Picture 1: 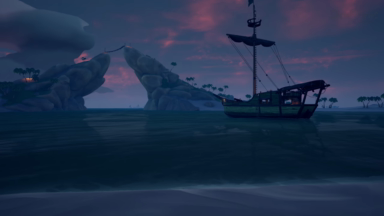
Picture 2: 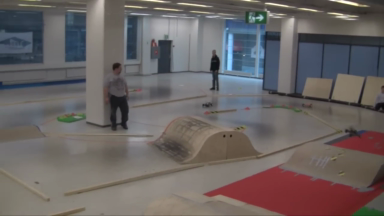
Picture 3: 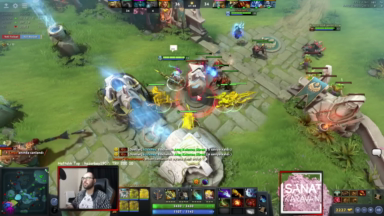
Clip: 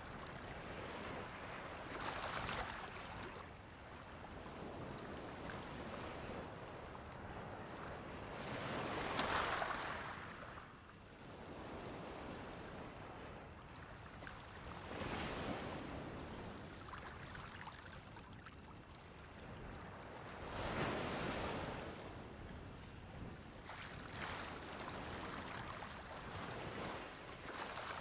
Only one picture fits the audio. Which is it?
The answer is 1